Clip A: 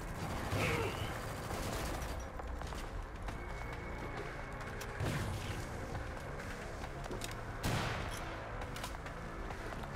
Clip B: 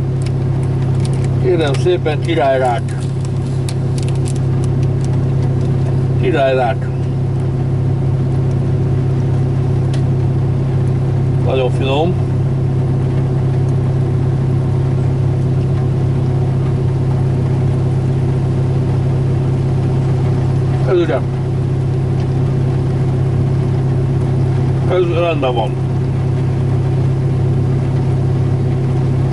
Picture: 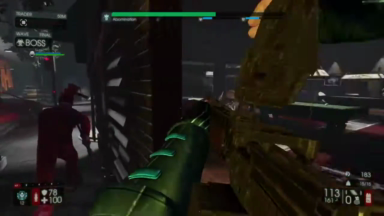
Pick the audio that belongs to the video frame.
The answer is A